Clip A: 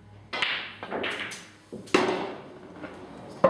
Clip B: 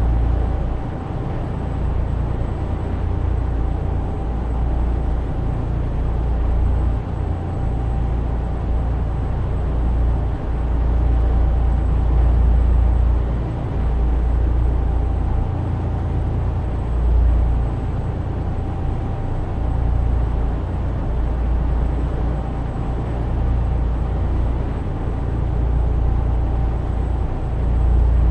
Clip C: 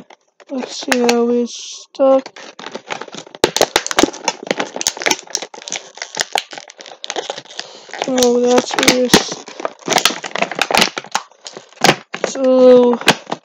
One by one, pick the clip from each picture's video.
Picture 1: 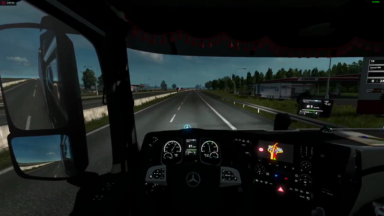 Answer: B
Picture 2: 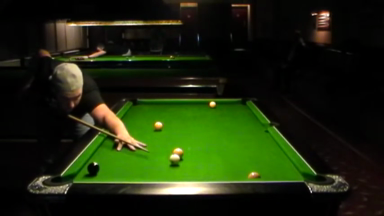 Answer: A